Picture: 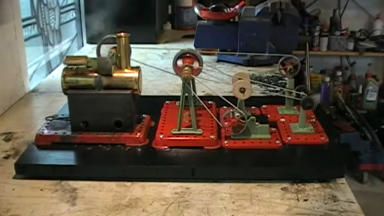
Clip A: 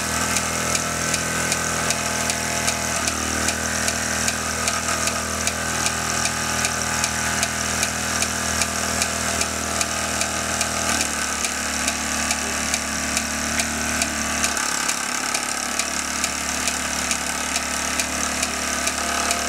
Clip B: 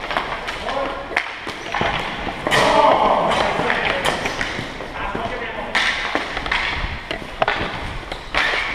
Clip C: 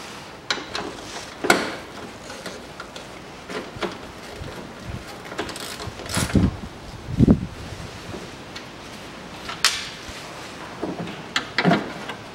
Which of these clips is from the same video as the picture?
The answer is A